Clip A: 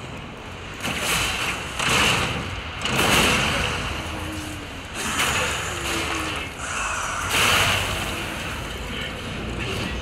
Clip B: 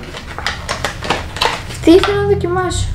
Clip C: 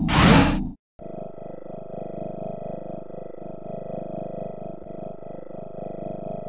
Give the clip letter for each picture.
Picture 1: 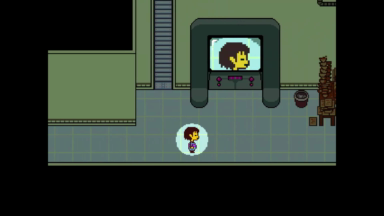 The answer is C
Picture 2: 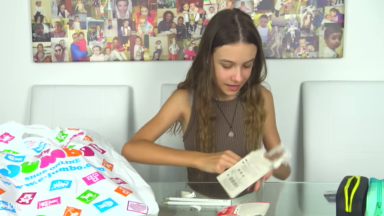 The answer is B